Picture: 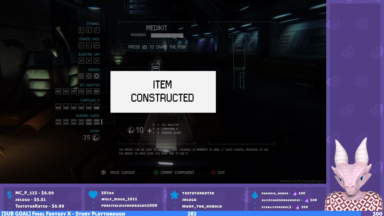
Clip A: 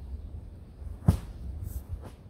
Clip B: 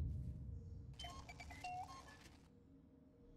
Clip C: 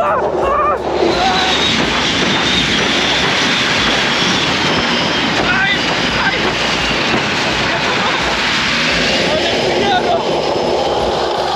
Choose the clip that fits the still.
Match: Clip B